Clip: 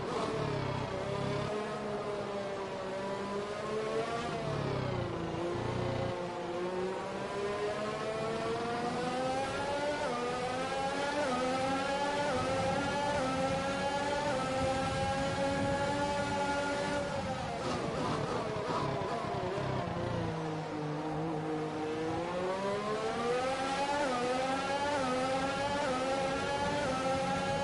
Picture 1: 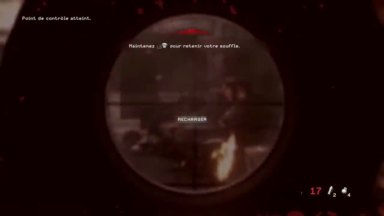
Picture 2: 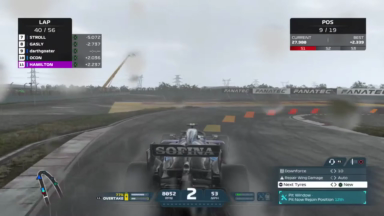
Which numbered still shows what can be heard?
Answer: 2